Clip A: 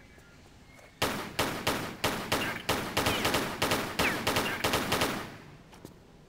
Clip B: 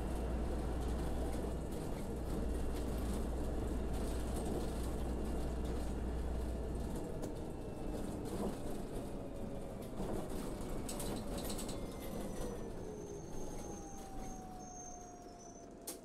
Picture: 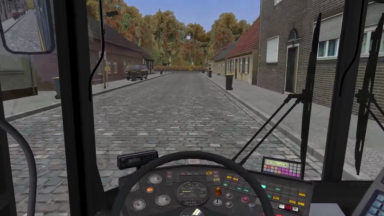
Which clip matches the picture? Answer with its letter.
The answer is B